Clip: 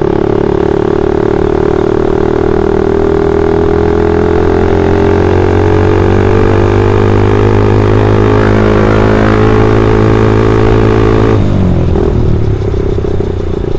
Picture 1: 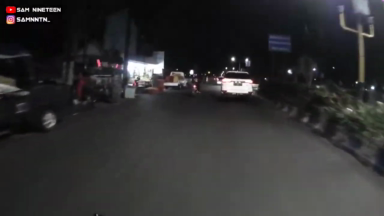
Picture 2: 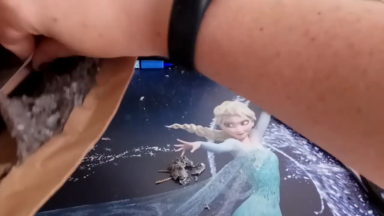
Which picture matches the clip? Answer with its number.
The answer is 1